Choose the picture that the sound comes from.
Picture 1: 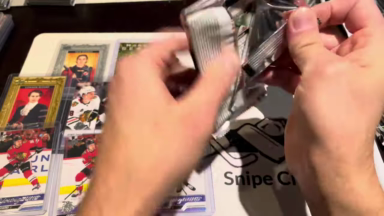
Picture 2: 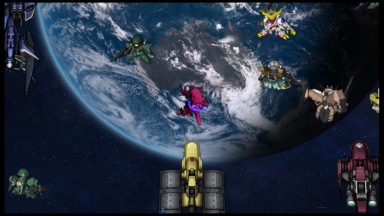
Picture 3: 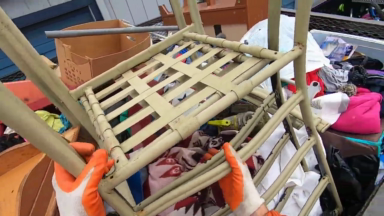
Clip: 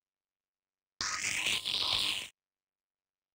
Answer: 2